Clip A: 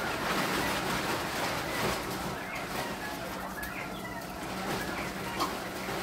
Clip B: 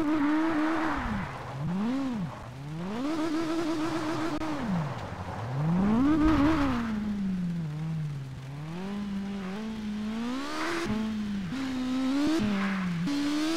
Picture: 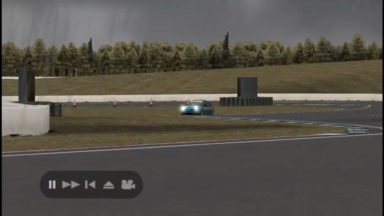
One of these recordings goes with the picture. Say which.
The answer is B